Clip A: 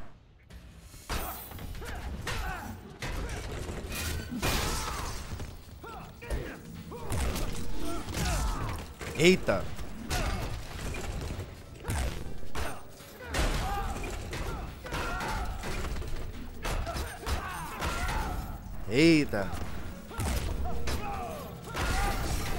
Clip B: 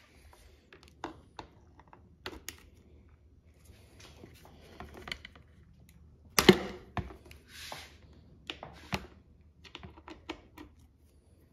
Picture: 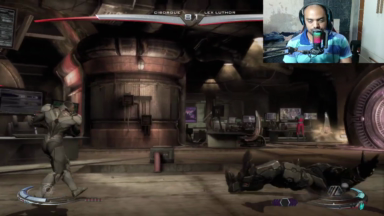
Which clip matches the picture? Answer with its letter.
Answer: A